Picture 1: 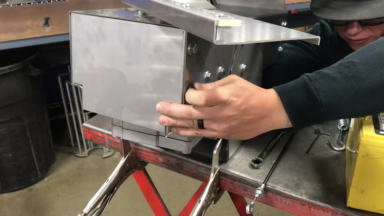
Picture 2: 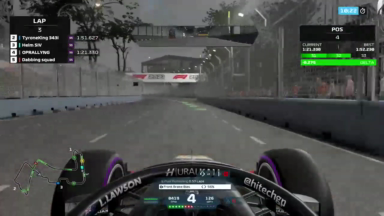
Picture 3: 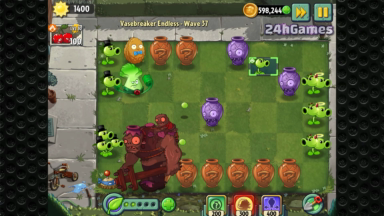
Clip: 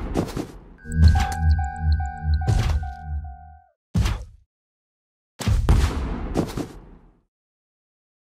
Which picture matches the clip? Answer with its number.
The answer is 3